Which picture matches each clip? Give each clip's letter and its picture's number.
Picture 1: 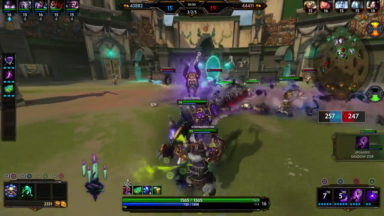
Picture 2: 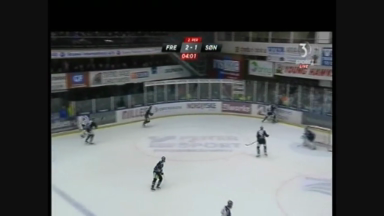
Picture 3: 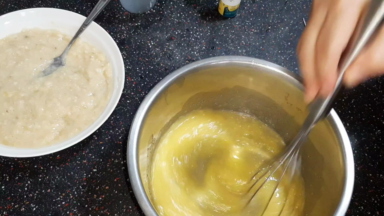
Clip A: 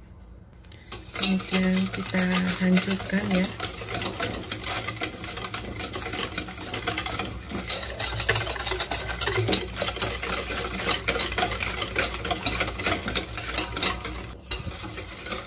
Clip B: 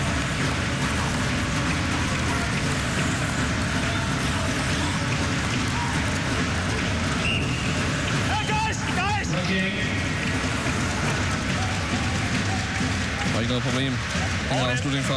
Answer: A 3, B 2